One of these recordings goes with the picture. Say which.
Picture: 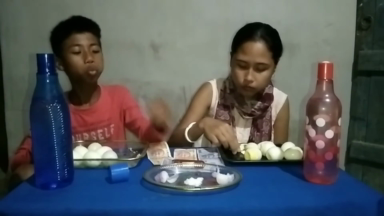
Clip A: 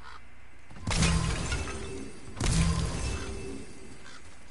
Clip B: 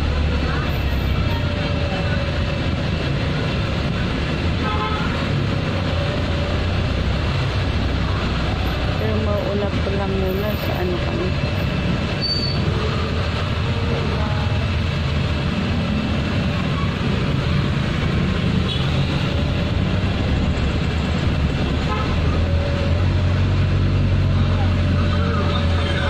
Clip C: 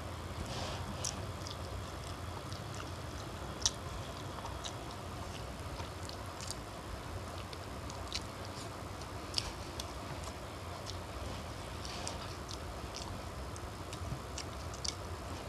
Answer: C